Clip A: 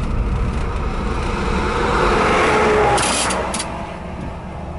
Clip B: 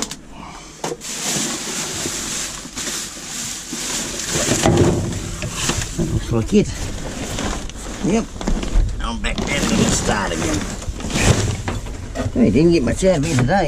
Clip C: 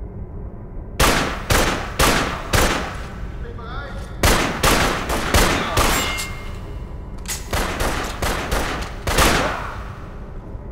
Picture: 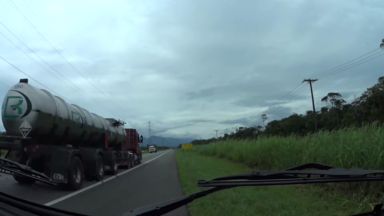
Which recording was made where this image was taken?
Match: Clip A